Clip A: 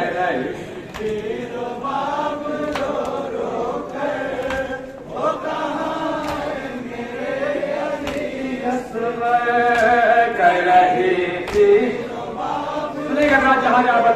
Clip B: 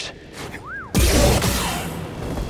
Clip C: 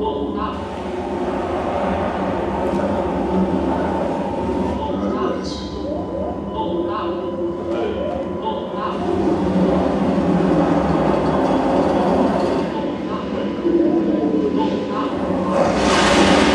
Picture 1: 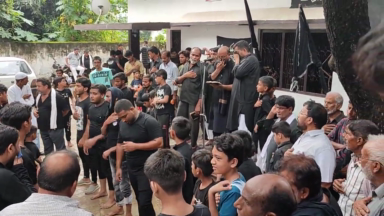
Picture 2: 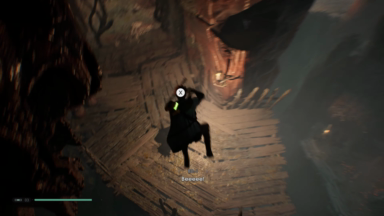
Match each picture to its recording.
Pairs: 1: A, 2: B